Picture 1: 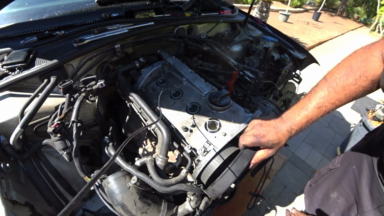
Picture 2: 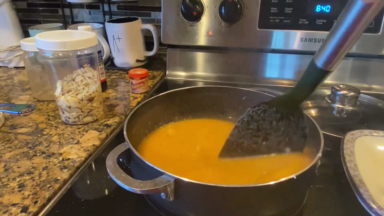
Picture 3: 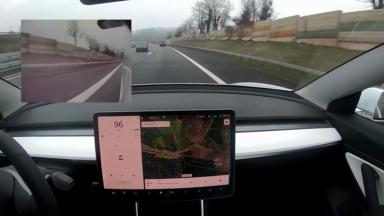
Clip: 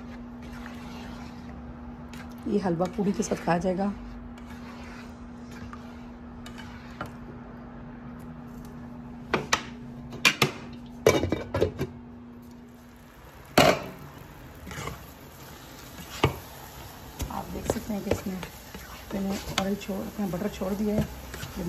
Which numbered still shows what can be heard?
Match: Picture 2